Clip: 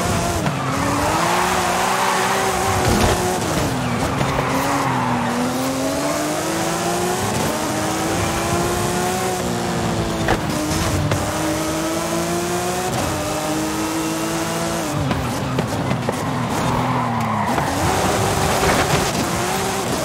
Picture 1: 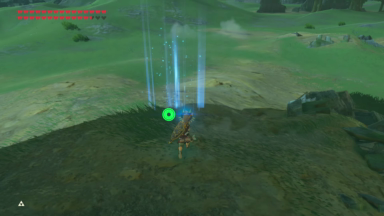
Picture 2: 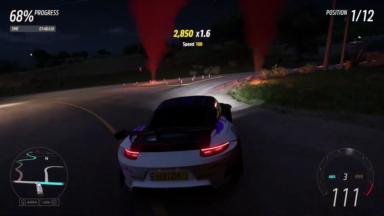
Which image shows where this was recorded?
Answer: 2